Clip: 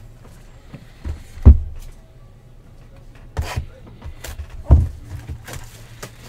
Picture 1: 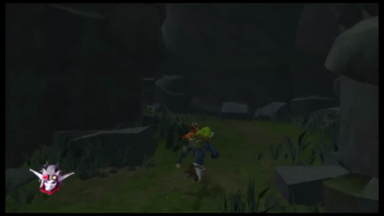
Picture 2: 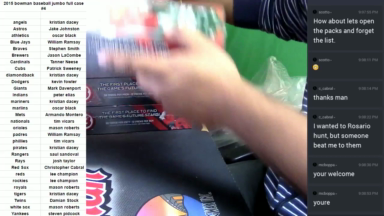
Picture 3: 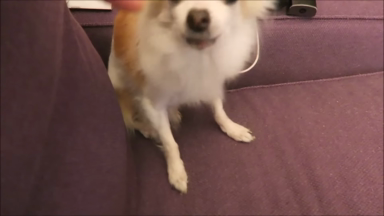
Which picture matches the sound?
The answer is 2